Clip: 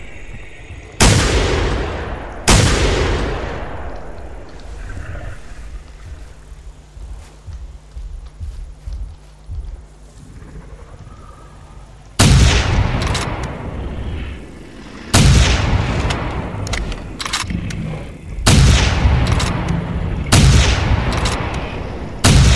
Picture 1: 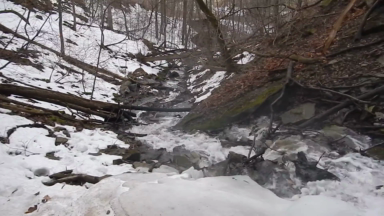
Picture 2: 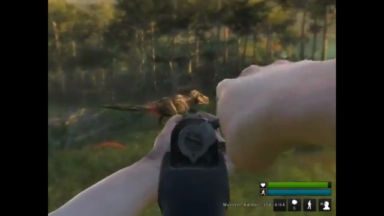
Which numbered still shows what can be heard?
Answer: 2